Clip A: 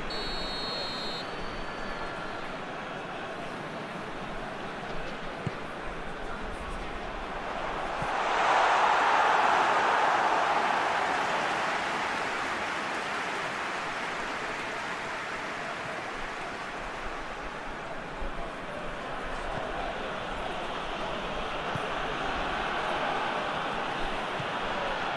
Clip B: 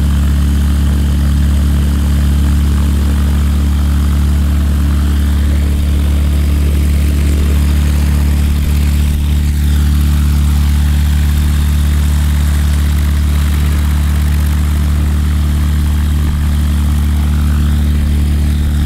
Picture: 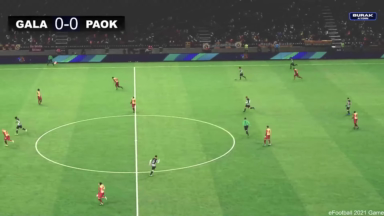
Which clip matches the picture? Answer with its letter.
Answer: A